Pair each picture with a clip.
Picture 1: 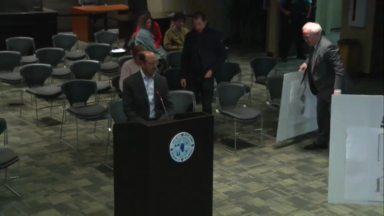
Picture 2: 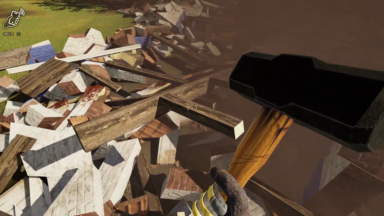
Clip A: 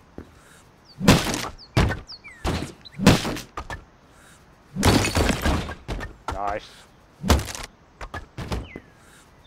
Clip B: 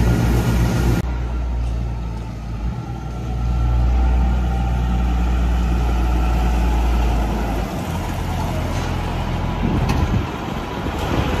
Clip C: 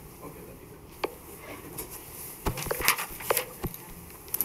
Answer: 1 C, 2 A